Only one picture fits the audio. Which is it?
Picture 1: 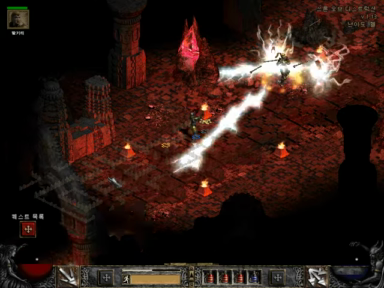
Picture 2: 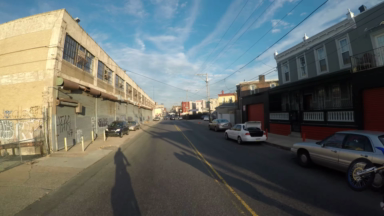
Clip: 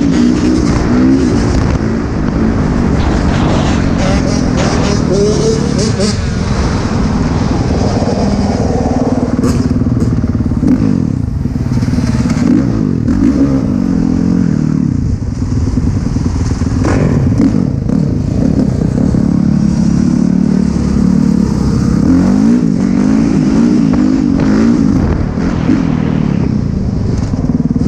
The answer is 2